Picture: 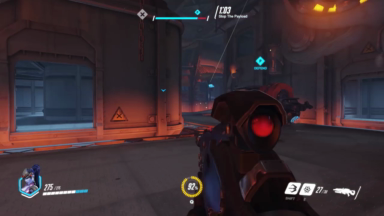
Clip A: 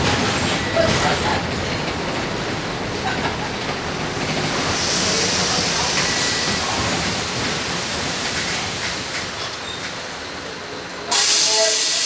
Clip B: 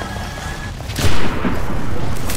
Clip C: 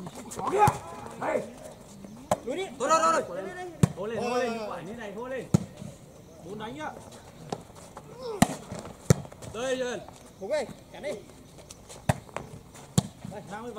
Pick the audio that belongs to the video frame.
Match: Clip B